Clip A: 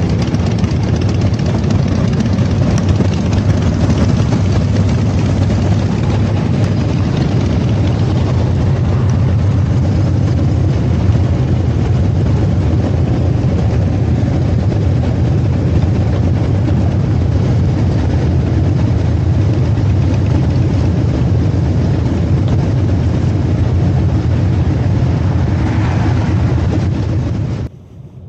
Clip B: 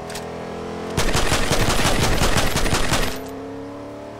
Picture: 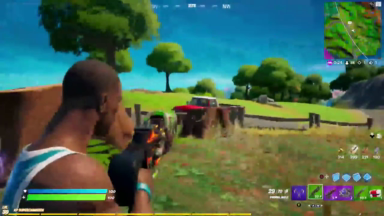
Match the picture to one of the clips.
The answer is B